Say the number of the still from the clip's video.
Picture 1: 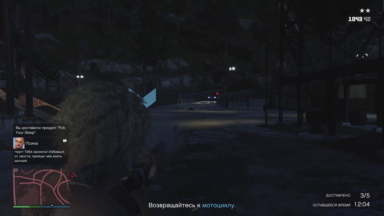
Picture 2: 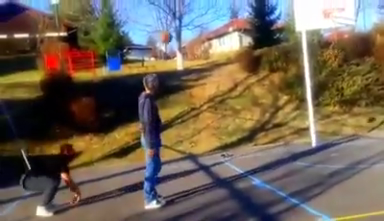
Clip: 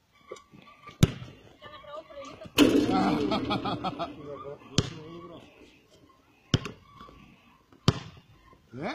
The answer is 2